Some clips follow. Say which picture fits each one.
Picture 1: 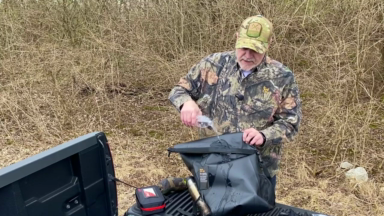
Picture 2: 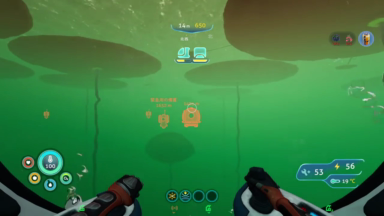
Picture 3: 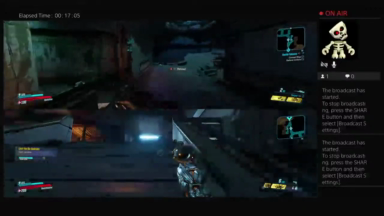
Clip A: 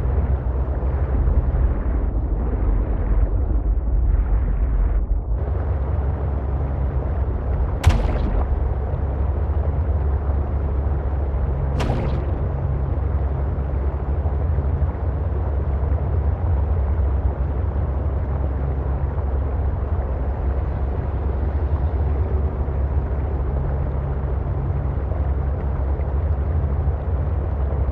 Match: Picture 2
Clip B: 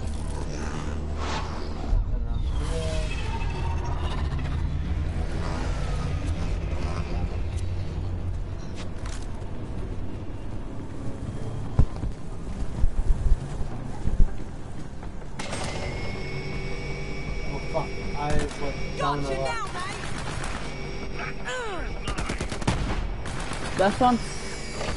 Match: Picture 3